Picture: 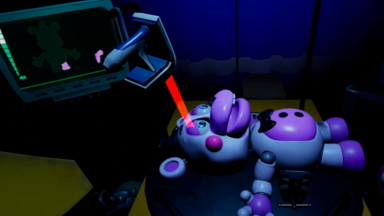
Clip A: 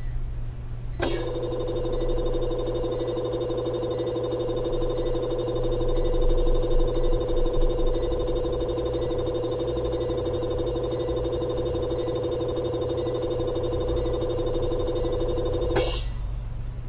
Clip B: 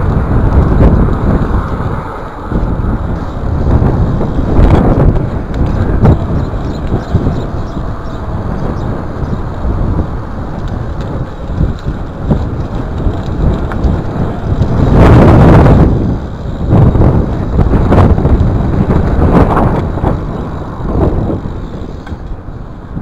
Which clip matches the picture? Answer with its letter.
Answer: A